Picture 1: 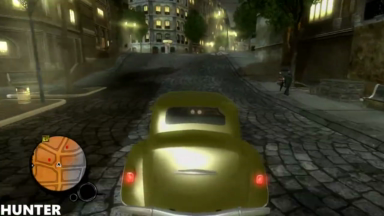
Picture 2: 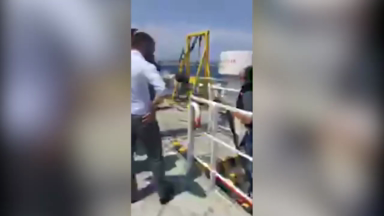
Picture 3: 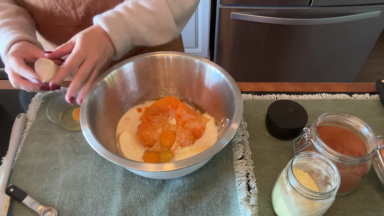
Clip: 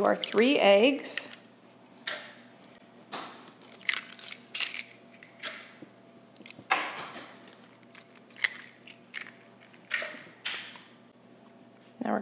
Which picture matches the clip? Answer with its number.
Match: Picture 3